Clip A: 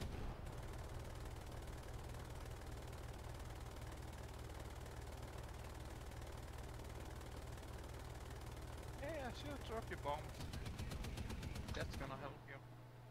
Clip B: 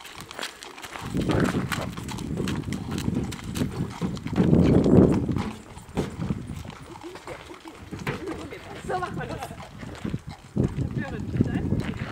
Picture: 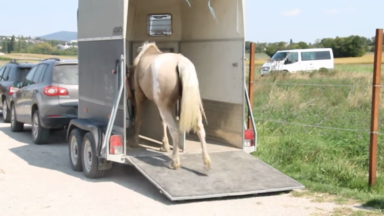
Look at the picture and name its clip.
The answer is B